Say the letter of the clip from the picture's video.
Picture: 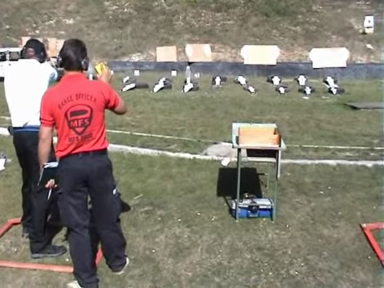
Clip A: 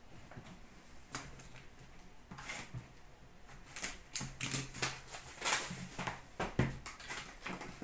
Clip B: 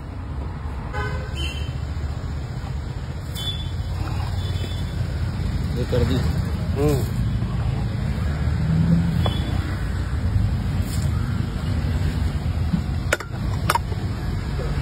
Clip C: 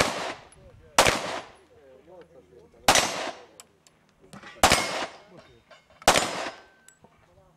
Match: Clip C